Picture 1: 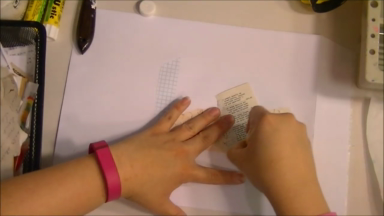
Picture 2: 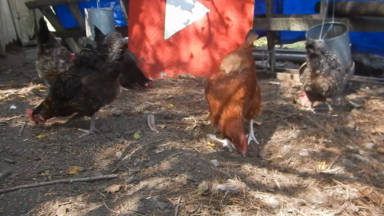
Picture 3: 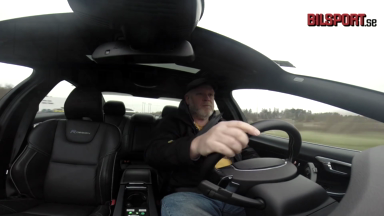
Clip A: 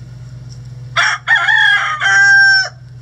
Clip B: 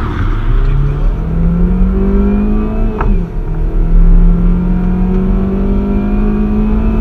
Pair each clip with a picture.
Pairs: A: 2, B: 3